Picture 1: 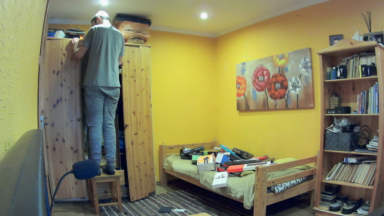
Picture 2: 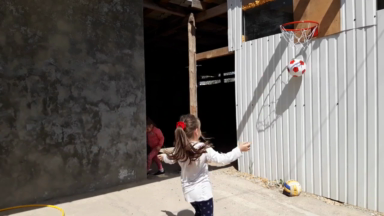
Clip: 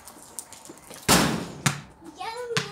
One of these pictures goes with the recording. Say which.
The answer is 2